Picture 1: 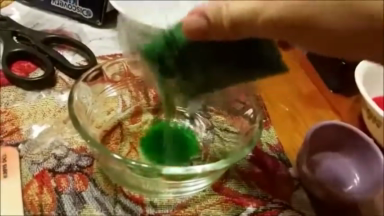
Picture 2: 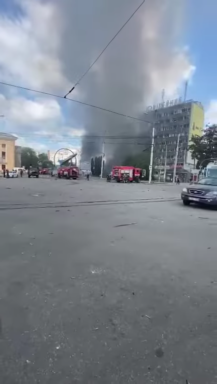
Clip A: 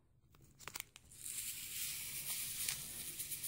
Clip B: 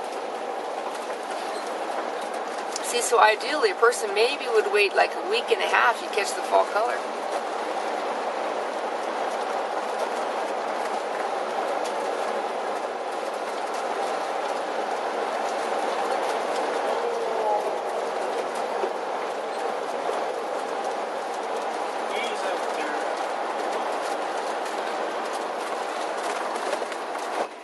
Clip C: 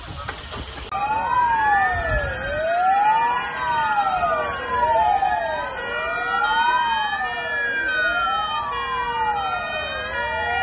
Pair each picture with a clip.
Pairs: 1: A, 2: C